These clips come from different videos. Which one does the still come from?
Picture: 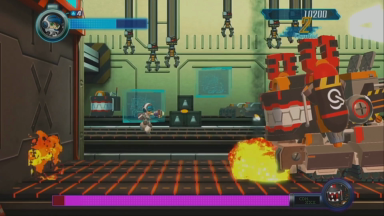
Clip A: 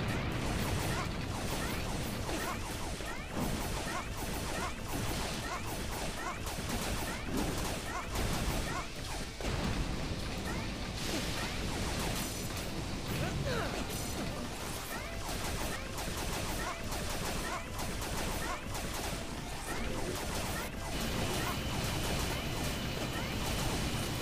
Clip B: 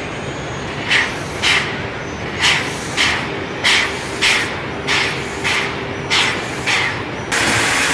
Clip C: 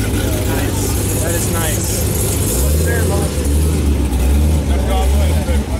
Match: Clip A